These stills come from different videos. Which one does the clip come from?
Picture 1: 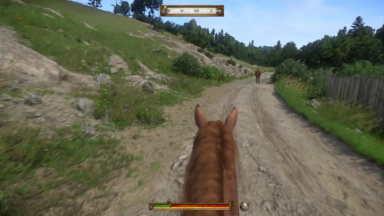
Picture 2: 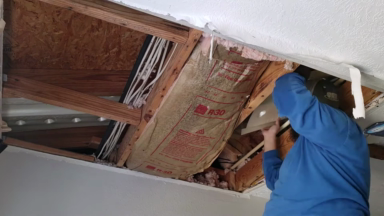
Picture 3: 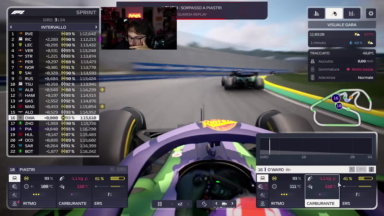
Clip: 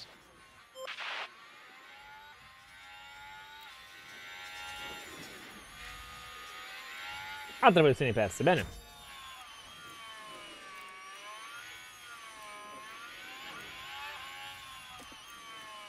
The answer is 3